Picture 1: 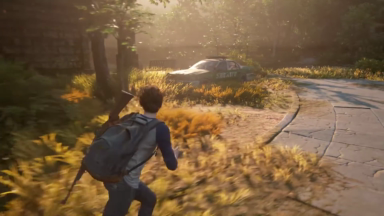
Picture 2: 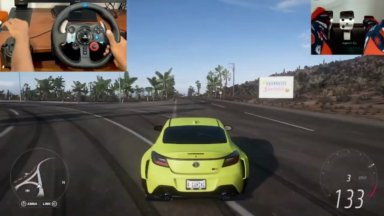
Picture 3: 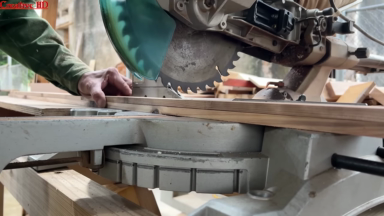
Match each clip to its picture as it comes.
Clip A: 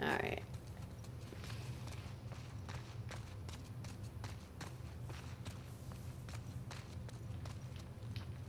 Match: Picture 1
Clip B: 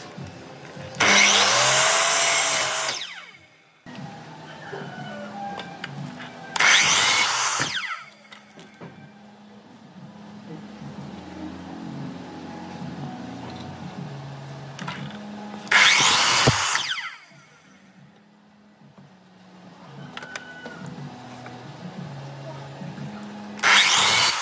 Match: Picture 3